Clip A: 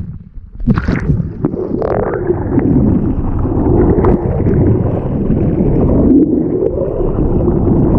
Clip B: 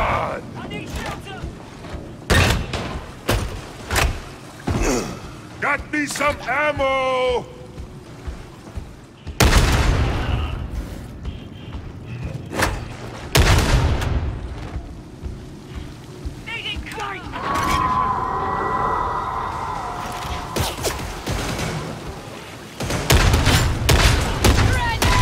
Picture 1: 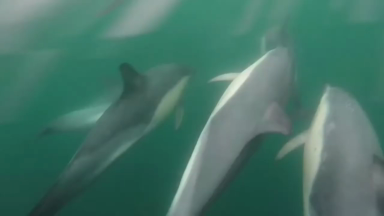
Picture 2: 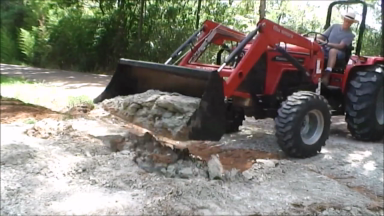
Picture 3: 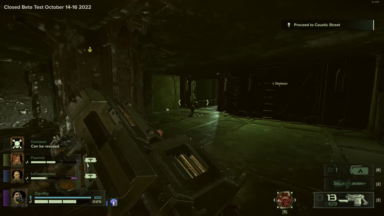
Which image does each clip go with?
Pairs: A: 1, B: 3